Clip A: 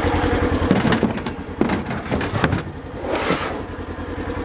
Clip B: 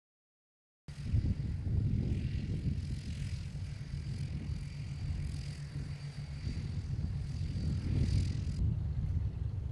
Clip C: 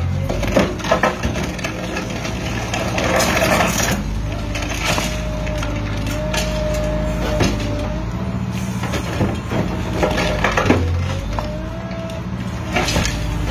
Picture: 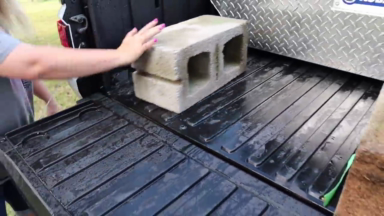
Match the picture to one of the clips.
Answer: A